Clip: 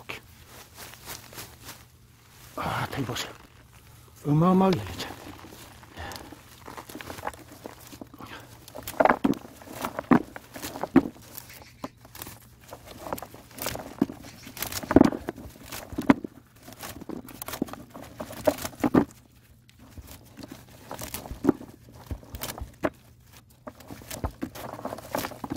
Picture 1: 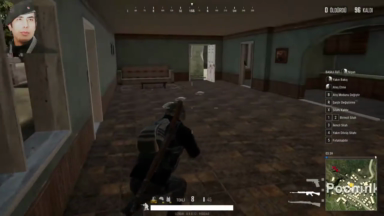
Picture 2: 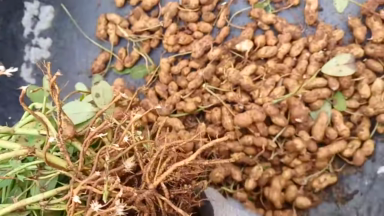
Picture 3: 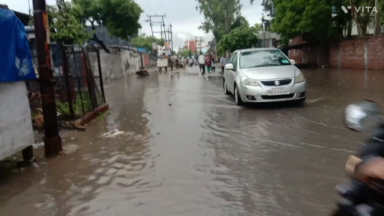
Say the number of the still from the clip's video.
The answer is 2